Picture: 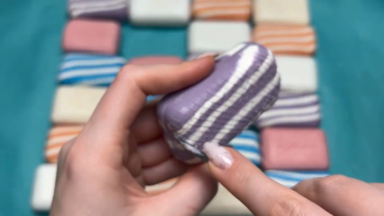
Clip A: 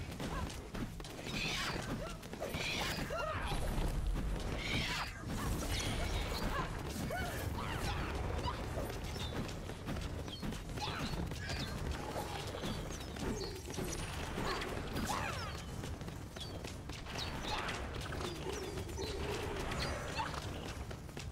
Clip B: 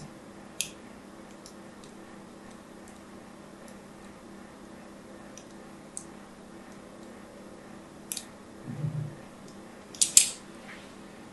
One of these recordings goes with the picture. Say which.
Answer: B